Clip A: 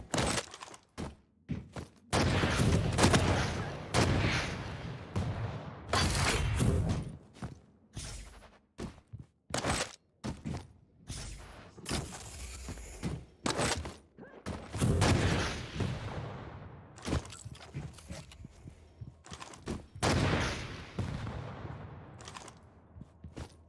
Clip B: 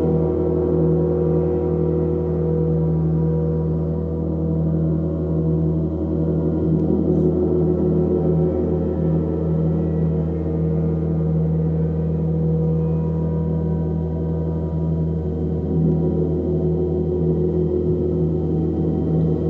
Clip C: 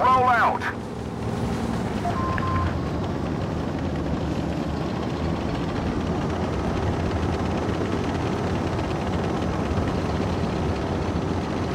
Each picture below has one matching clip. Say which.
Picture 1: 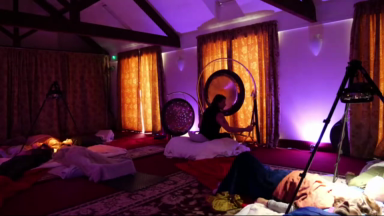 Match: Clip B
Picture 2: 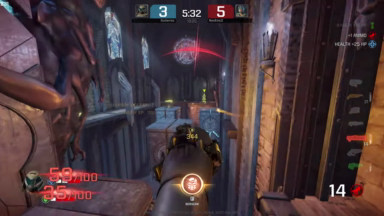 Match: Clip A